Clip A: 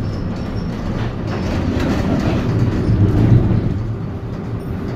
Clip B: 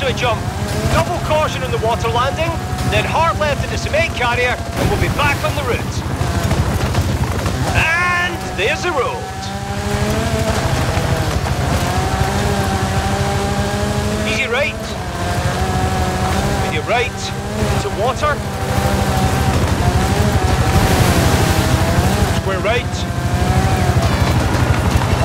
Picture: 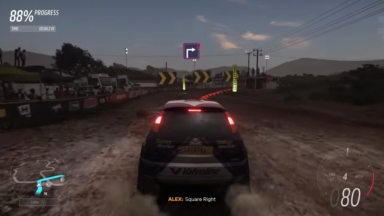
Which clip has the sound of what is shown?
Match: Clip B